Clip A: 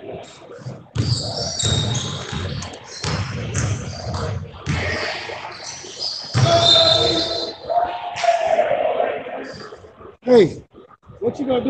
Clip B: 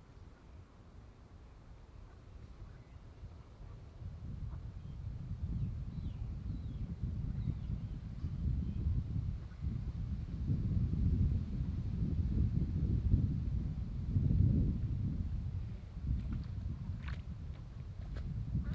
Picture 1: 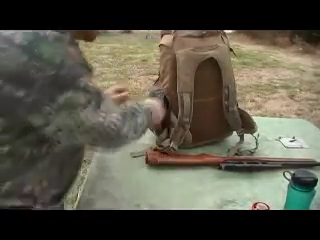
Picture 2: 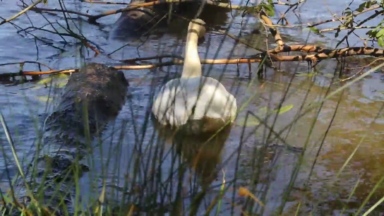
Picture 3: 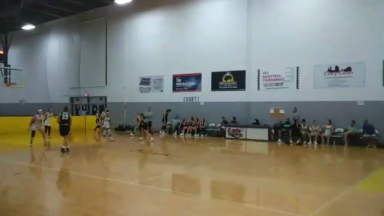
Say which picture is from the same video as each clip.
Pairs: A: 3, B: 2